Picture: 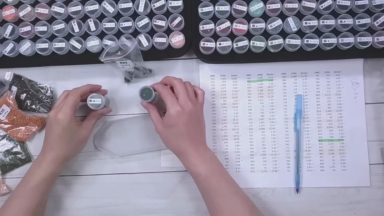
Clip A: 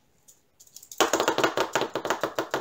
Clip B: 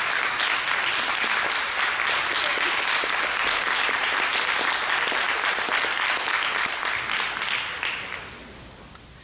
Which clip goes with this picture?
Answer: A